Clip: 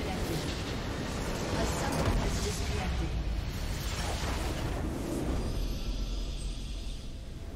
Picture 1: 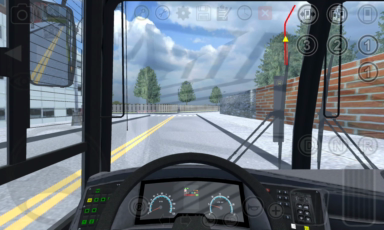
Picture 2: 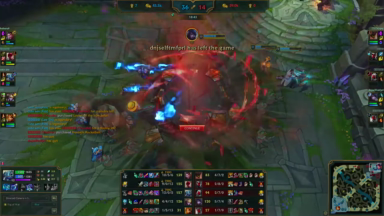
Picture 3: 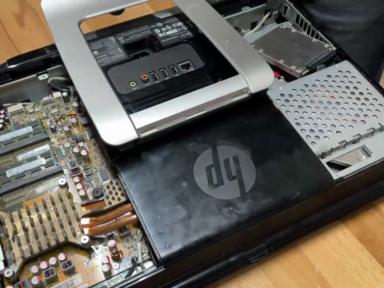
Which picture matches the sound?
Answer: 2